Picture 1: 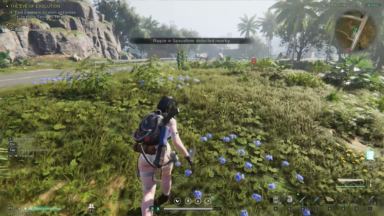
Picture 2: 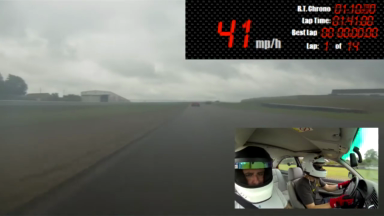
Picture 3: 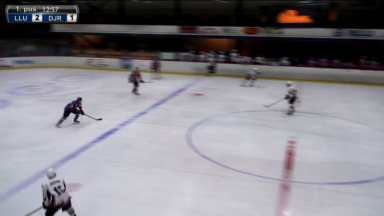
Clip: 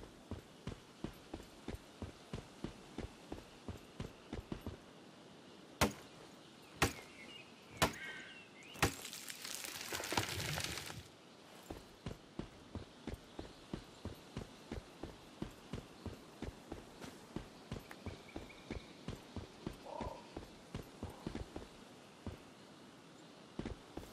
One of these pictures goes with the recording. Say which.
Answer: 1